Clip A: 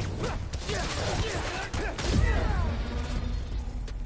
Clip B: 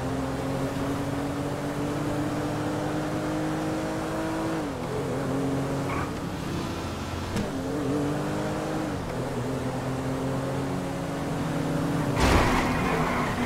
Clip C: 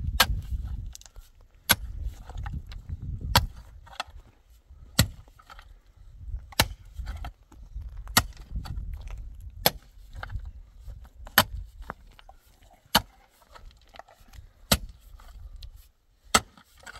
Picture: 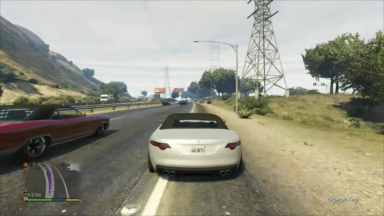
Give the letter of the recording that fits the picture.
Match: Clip B